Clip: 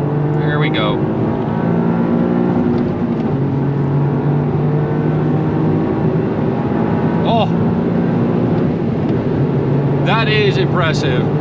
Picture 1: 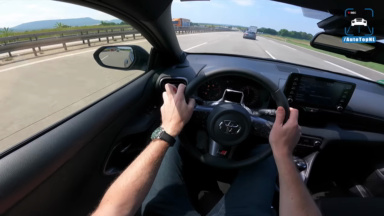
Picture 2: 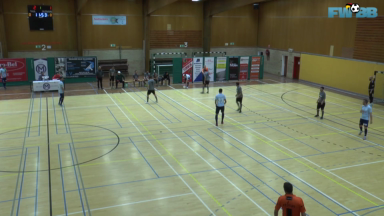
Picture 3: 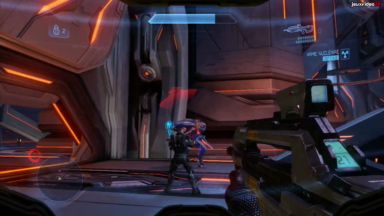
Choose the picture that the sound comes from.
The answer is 1